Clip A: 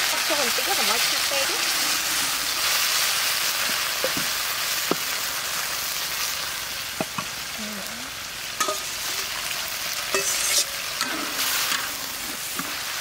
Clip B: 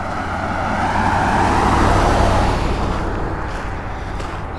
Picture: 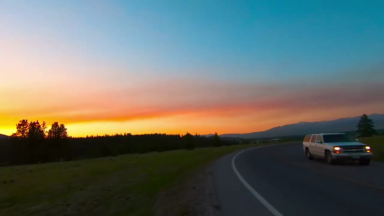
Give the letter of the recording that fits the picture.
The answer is B